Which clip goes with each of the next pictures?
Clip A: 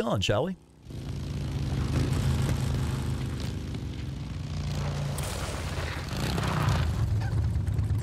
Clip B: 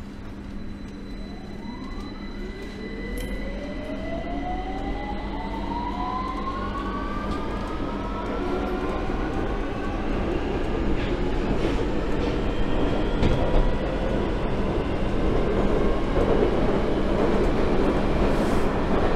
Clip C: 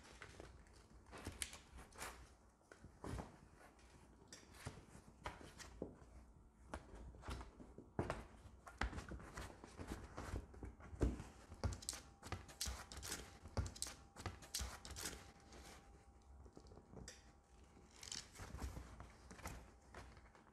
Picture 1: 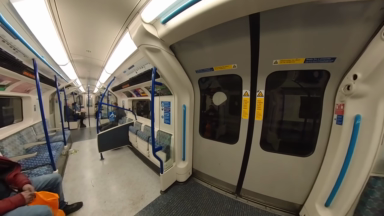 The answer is B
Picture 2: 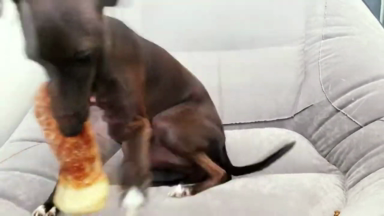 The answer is C